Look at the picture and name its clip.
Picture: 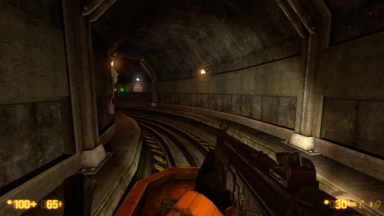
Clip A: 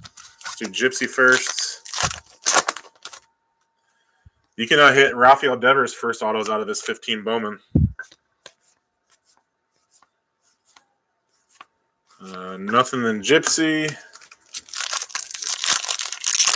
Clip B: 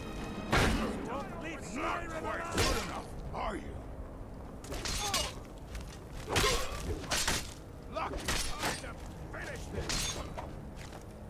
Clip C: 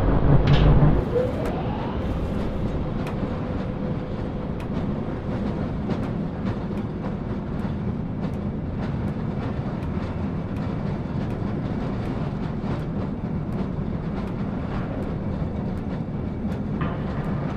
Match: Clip C